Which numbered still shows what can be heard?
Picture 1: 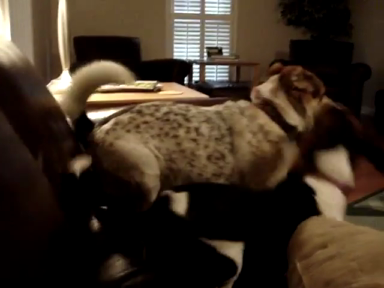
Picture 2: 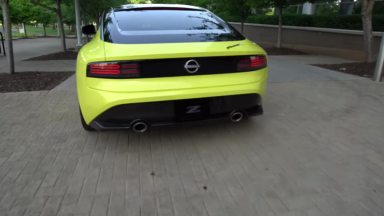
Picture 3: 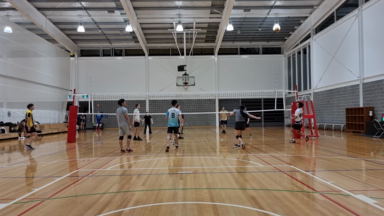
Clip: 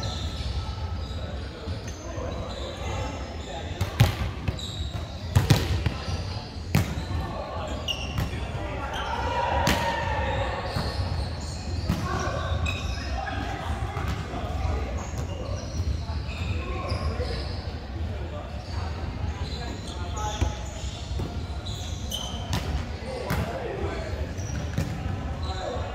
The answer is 3